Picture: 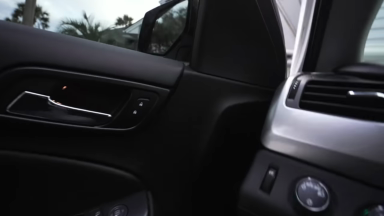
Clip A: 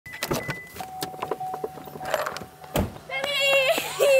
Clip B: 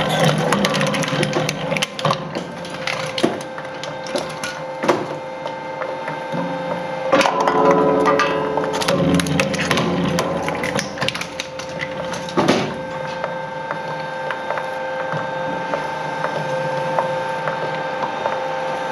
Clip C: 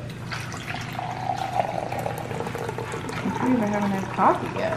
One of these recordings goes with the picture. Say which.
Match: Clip A